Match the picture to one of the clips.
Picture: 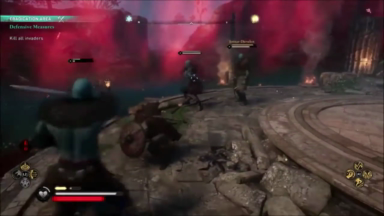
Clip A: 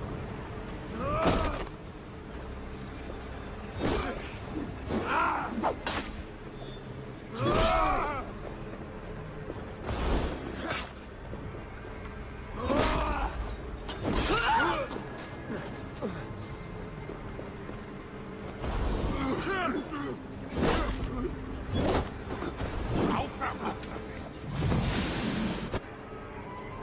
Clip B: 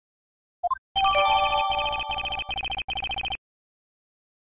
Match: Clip A